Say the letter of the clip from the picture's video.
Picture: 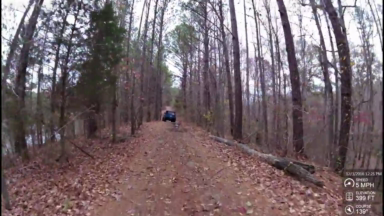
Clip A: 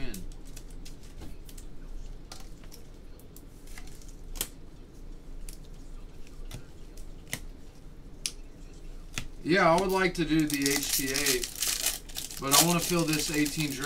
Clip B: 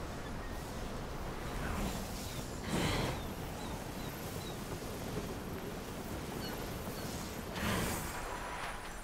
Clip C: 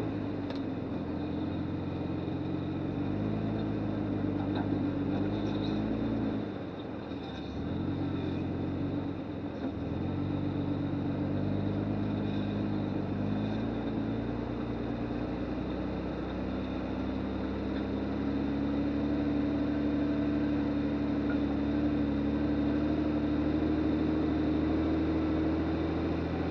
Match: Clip C